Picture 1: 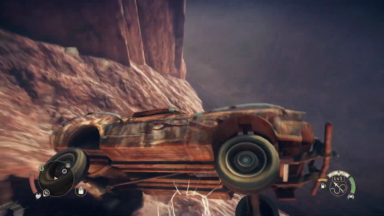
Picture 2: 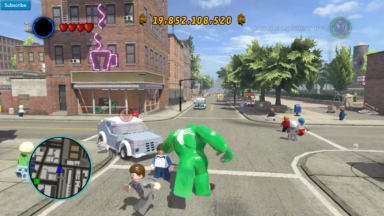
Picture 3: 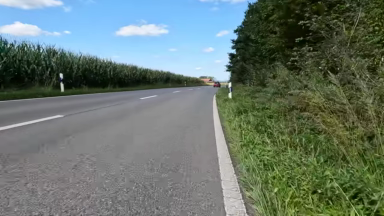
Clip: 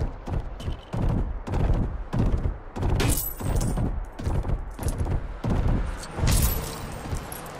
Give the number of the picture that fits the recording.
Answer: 2